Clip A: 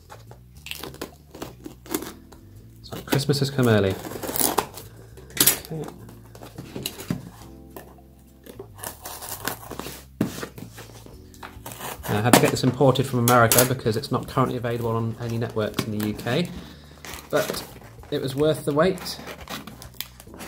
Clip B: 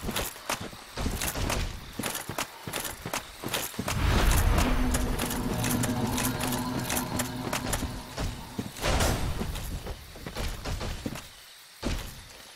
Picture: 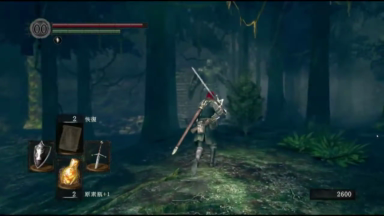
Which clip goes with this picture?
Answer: B